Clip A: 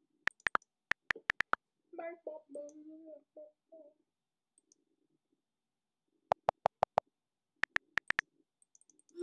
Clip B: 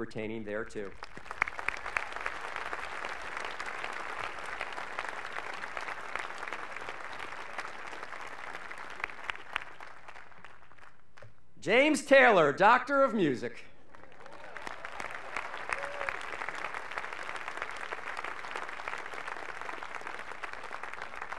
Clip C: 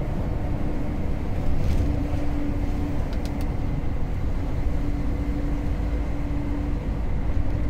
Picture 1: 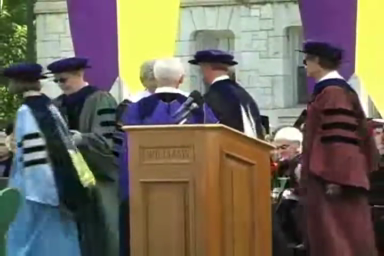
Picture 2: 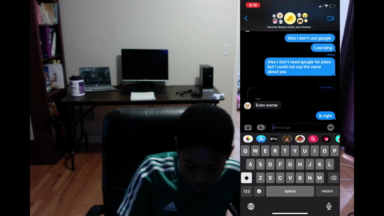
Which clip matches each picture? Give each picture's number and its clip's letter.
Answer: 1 B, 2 A